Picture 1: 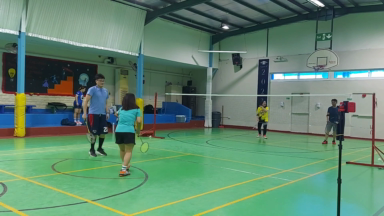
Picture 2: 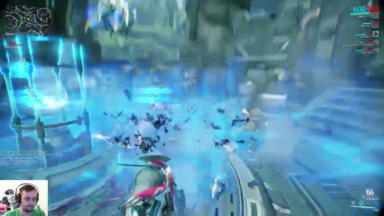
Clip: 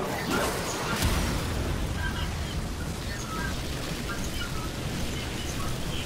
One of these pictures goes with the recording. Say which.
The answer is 2